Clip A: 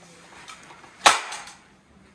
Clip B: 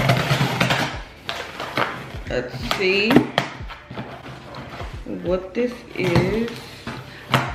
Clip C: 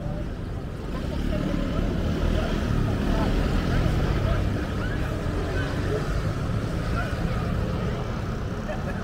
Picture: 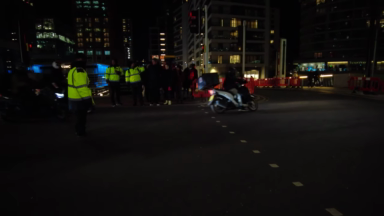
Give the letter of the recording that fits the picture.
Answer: C